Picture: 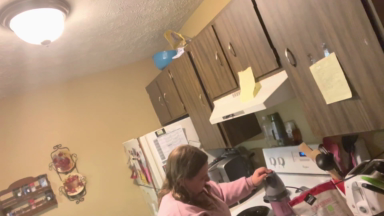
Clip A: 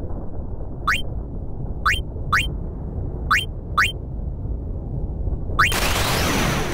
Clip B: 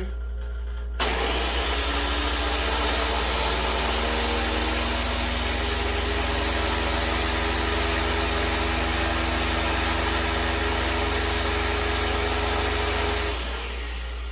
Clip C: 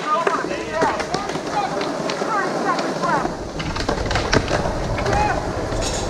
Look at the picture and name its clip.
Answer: B